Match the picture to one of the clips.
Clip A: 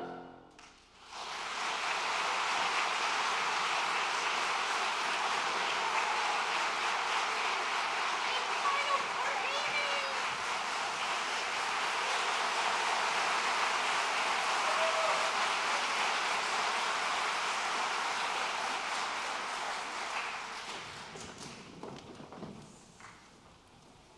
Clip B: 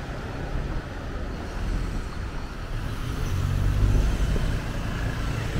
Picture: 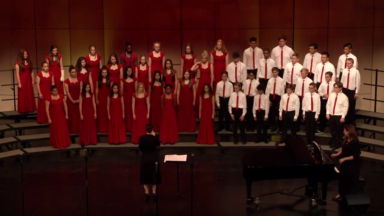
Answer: A